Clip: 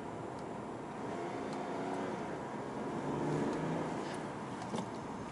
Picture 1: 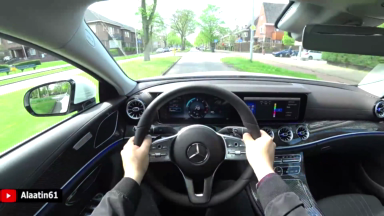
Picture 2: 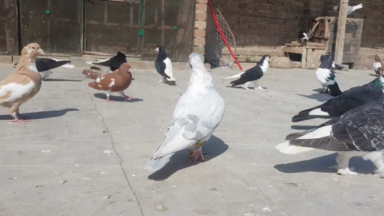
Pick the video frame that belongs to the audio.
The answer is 1